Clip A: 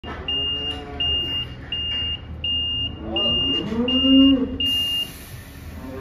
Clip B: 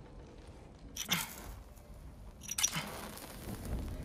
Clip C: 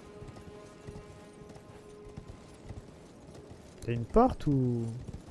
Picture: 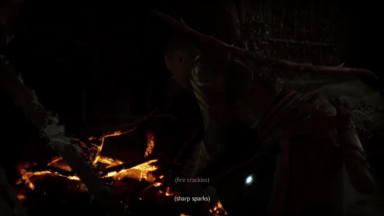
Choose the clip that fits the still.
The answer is B